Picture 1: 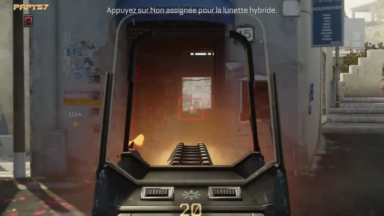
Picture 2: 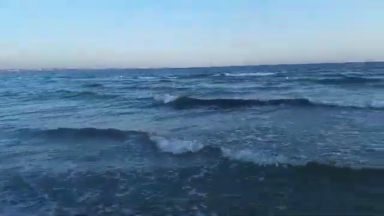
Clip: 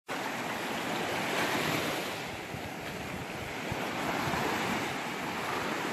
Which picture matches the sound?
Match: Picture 2